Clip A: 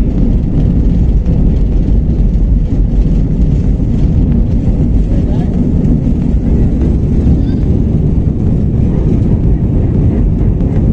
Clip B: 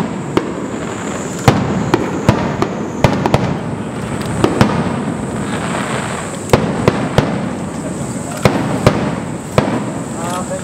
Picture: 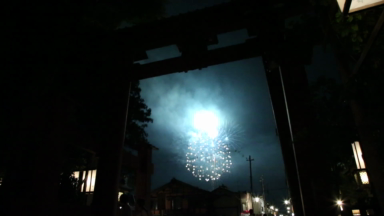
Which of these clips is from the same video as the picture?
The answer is B